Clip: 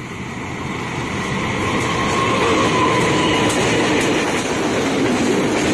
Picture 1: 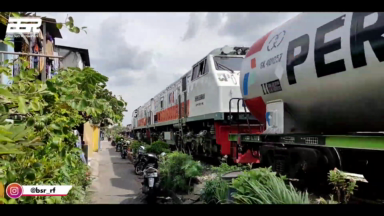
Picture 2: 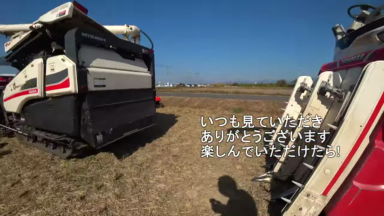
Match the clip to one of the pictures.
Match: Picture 1